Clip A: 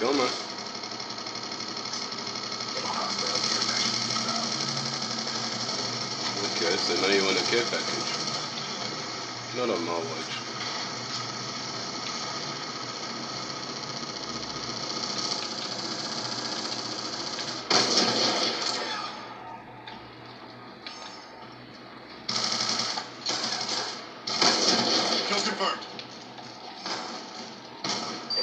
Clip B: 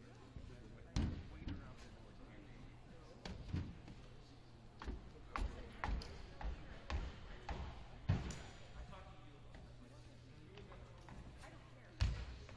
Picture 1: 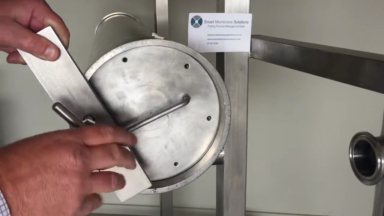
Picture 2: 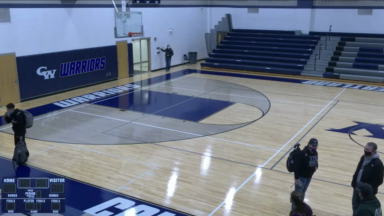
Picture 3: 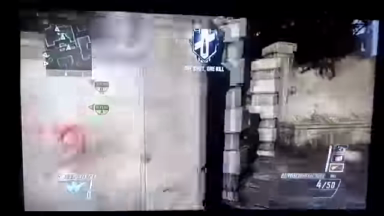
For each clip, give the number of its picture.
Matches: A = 3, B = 2